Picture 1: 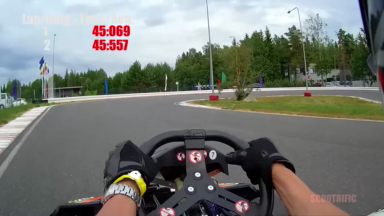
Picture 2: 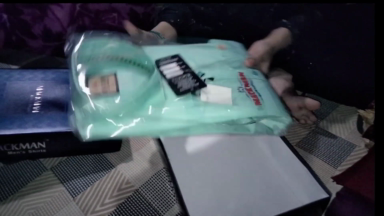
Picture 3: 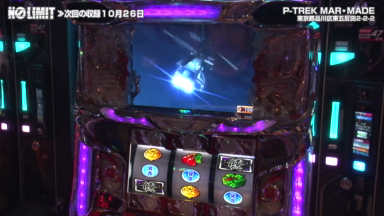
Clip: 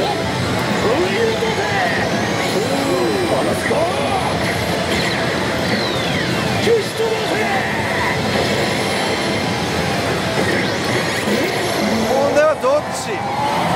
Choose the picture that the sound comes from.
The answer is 3